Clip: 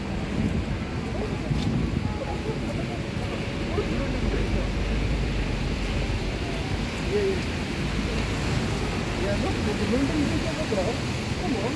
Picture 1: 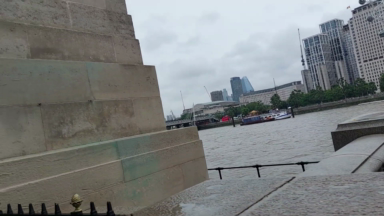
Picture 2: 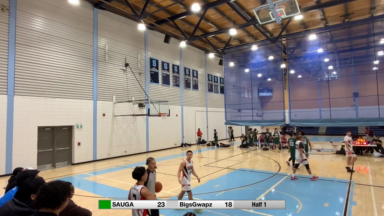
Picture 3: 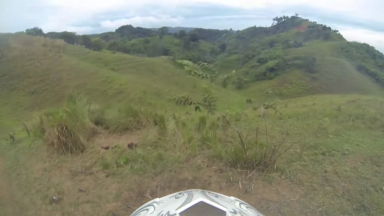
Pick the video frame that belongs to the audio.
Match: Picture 1